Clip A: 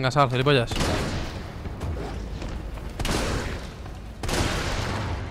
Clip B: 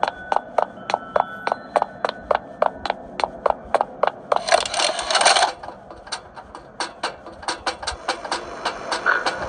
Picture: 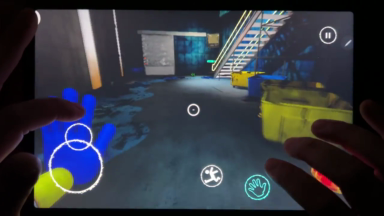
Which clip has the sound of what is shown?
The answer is B